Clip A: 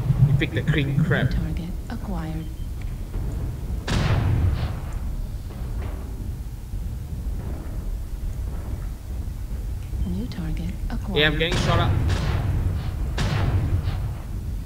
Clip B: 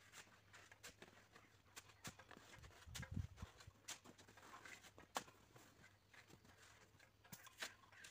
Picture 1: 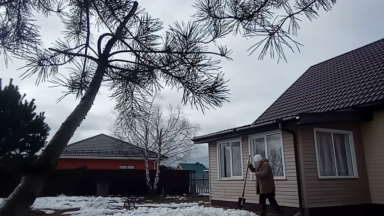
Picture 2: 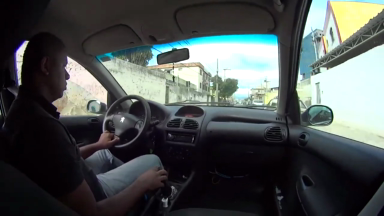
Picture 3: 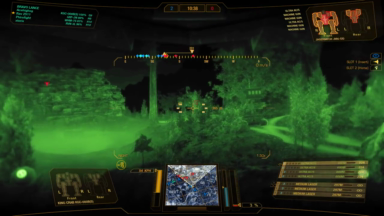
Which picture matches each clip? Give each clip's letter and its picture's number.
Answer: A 3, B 1